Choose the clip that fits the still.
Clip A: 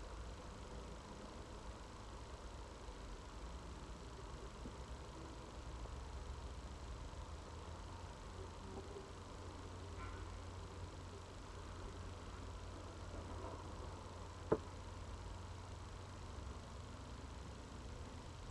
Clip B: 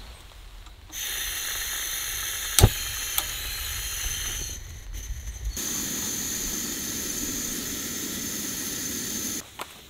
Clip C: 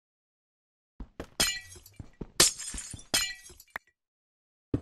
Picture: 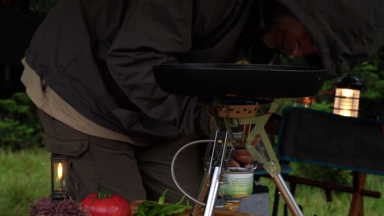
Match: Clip B